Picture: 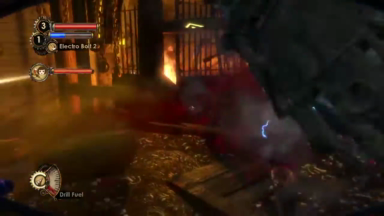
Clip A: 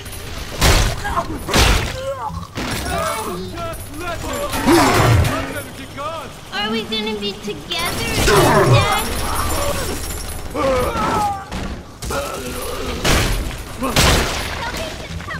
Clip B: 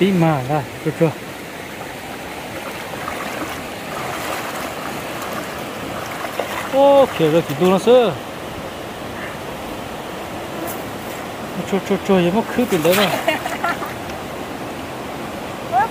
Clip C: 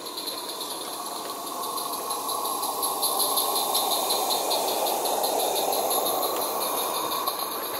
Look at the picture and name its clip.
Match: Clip A